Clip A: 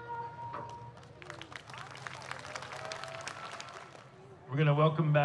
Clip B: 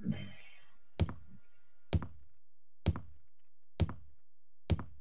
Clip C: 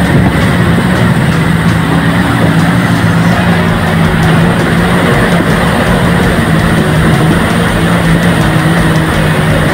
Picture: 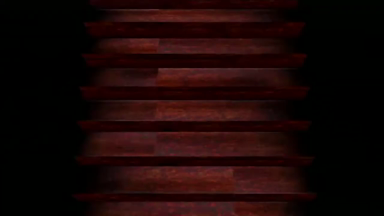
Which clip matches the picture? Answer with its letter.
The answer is B